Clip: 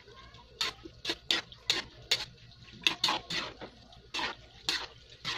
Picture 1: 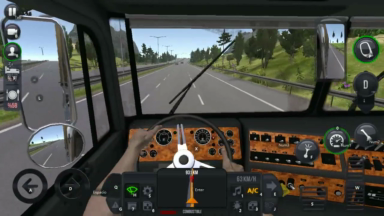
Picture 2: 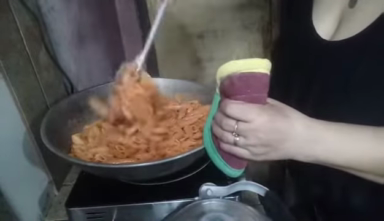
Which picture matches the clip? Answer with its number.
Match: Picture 2